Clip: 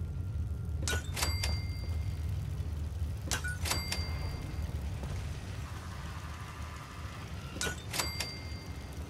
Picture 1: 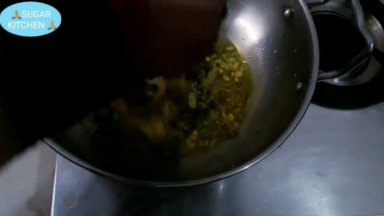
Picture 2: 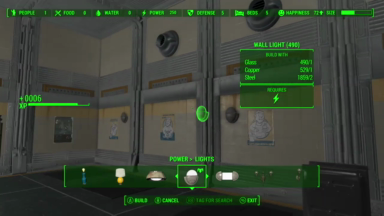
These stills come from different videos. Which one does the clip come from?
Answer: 2